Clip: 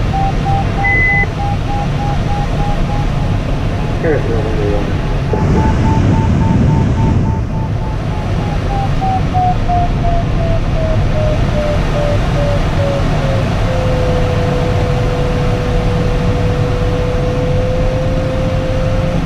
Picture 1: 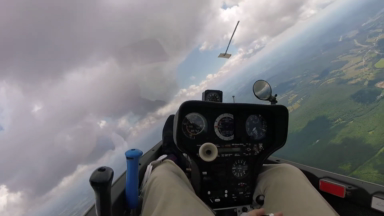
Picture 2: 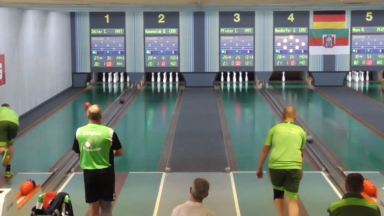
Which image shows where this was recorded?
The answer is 1